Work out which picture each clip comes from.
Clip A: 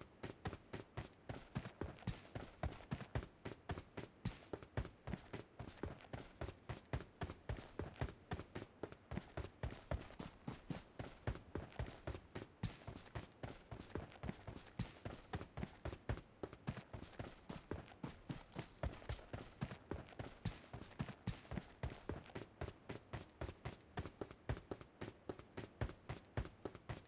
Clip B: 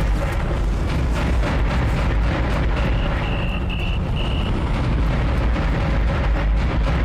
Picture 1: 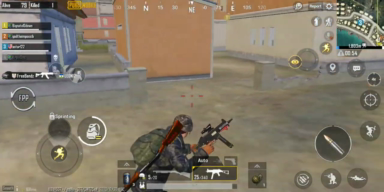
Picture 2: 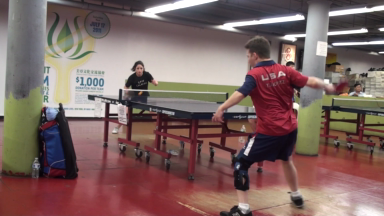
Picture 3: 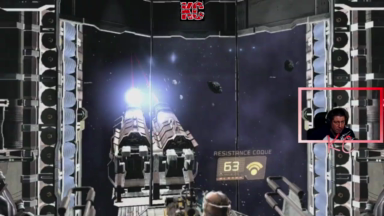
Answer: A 1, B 3